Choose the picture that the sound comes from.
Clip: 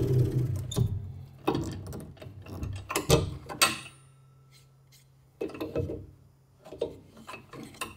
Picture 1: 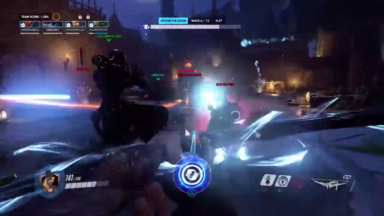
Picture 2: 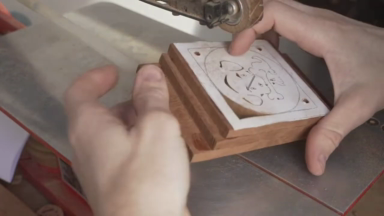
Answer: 2